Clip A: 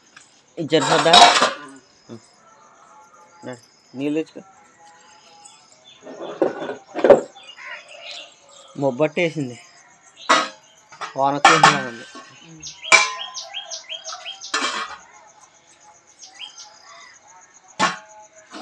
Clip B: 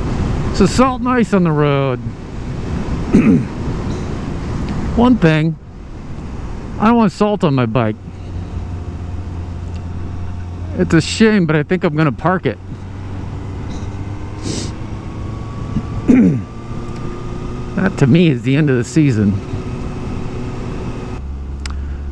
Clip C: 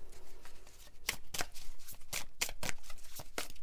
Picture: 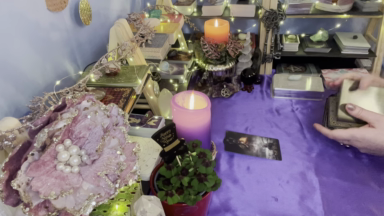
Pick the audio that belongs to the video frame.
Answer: C